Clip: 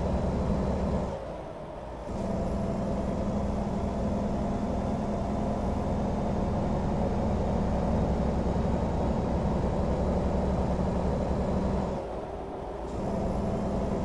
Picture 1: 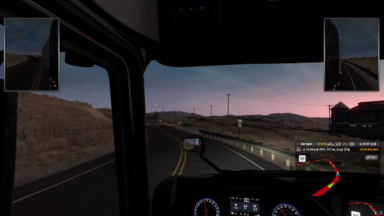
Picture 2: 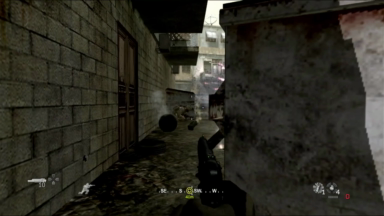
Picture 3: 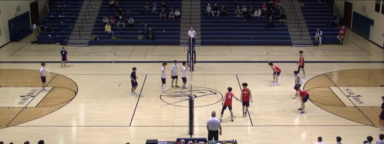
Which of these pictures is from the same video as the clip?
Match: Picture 1